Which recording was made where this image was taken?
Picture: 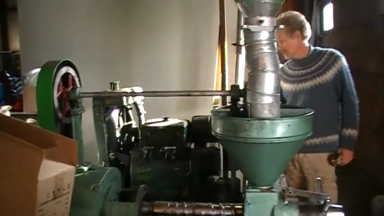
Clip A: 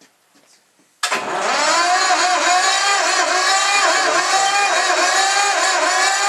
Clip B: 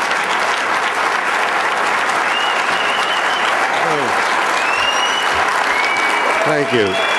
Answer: A